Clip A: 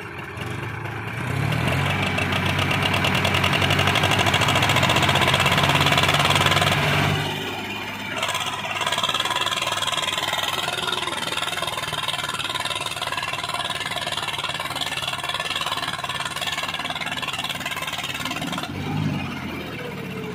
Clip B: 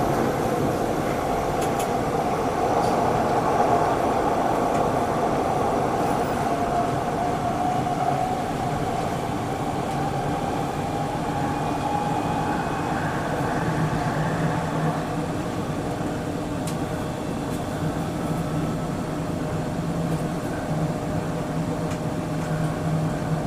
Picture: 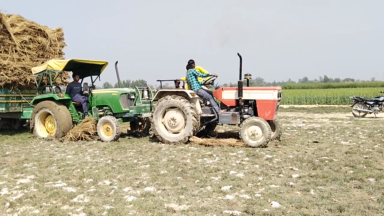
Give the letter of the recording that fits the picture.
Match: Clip A